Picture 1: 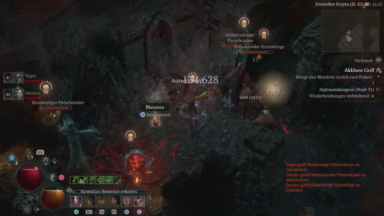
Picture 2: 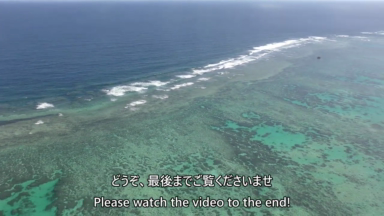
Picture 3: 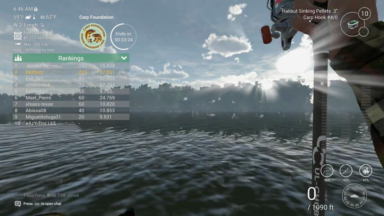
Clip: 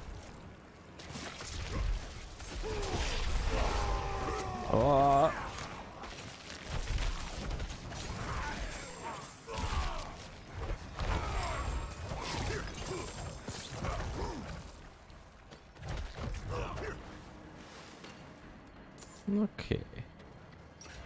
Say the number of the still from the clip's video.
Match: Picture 1